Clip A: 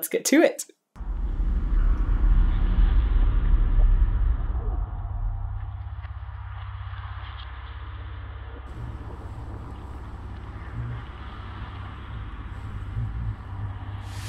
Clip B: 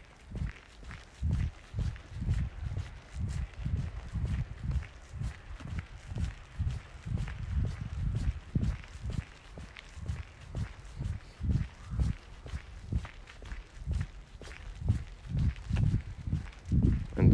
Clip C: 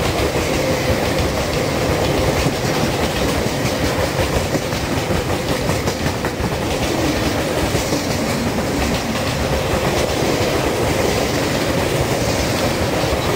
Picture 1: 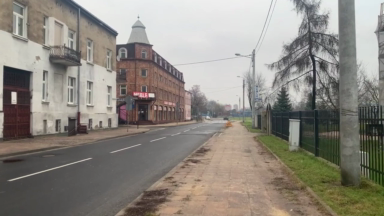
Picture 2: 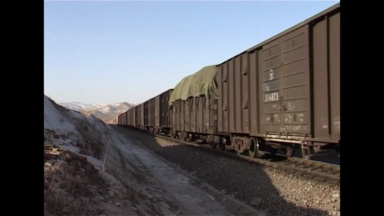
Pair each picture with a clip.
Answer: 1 B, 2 C